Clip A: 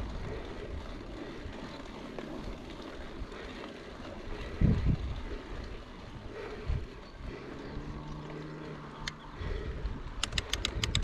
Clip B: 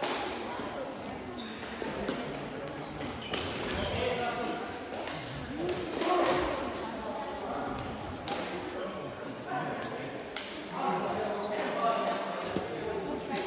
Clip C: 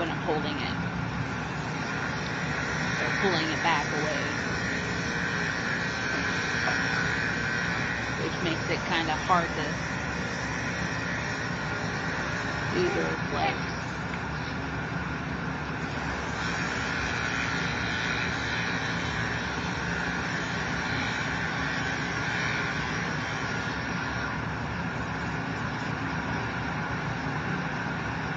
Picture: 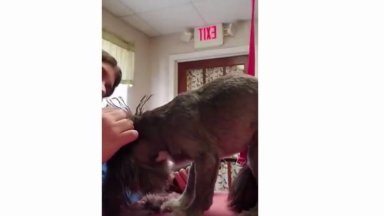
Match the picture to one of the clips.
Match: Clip C